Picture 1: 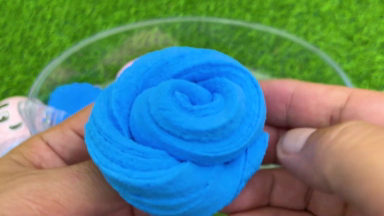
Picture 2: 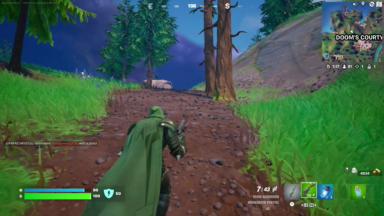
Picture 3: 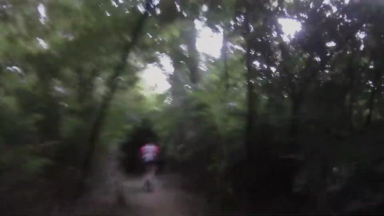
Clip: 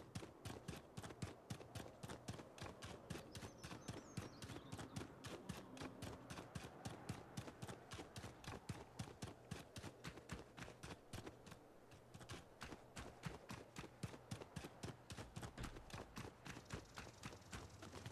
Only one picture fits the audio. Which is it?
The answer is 2